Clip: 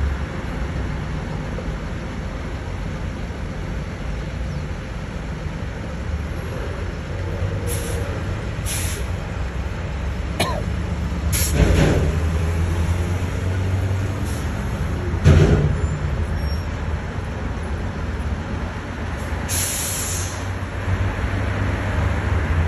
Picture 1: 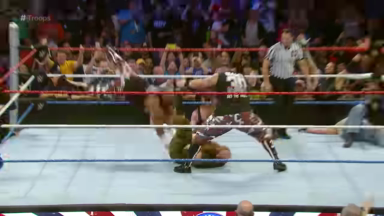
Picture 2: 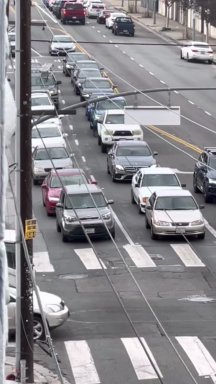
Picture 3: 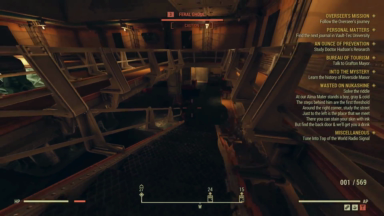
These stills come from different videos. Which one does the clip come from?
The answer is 2